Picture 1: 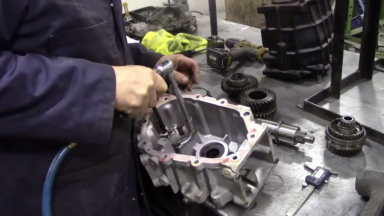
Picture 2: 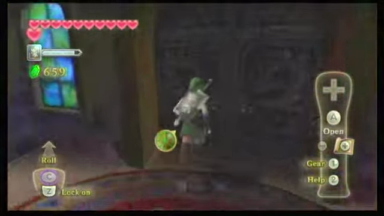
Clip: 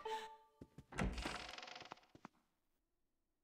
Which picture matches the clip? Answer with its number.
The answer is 2